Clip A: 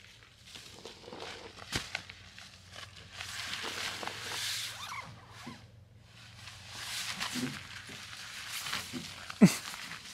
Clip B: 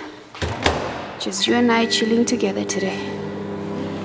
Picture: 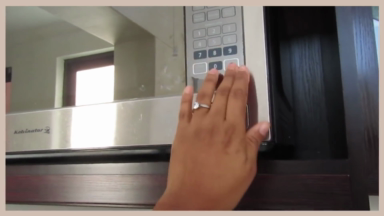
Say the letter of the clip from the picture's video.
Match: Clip B